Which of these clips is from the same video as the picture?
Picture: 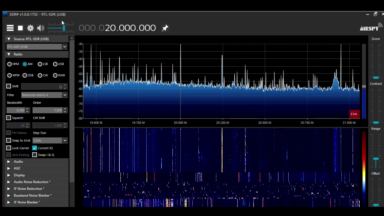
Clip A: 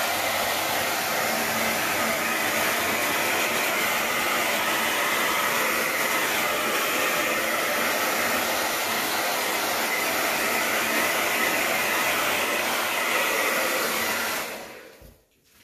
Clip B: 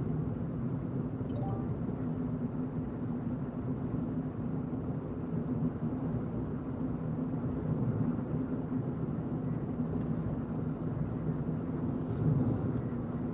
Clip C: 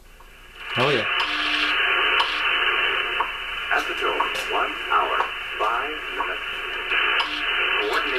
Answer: C